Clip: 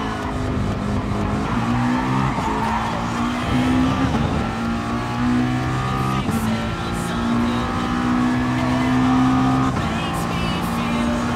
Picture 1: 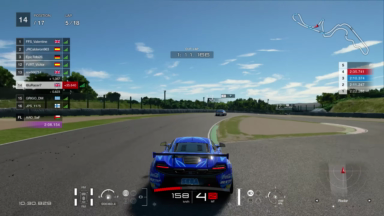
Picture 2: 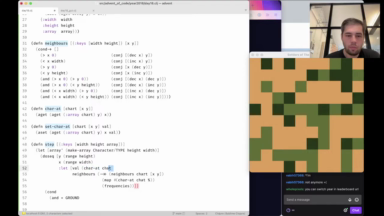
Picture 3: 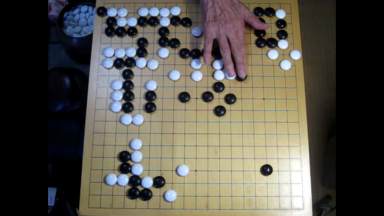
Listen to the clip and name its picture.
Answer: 1